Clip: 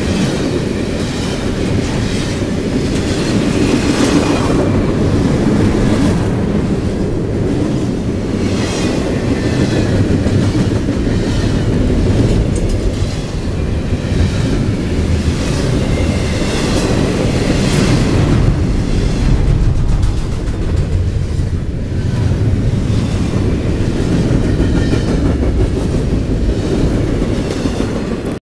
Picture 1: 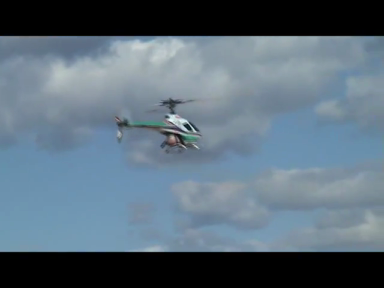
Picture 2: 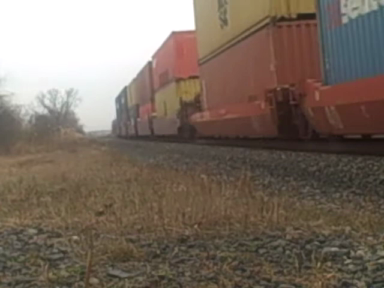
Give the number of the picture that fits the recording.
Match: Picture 2